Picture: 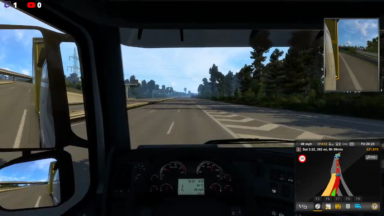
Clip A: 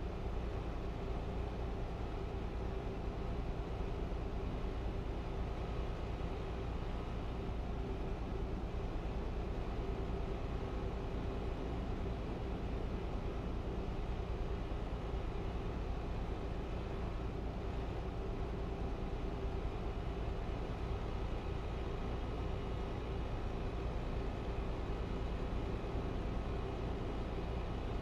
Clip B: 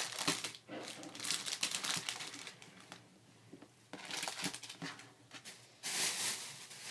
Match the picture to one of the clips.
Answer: A